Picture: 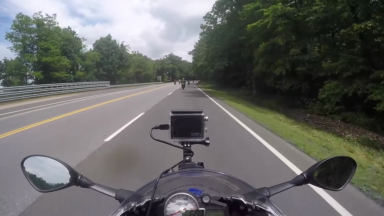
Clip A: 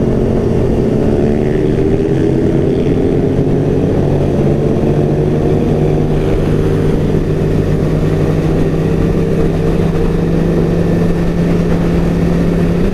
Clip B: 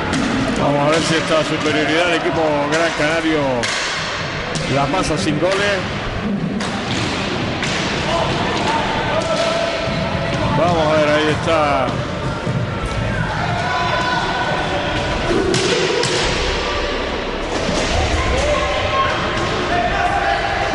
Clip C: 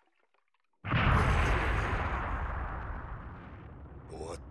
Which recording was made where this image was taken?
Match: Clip A